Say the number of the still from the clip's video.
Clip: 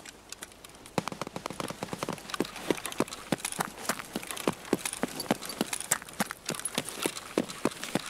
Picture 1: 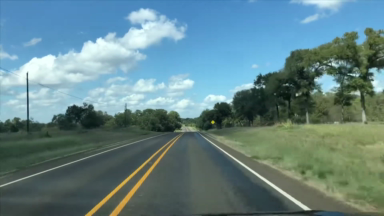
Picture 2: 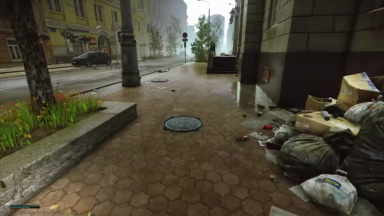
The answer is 2